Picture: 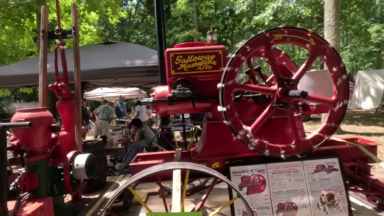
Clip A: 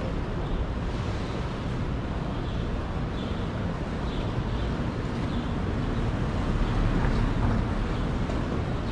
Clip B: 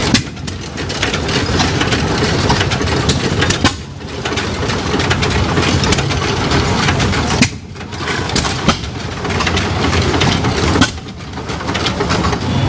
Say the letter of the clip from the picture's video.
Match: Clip B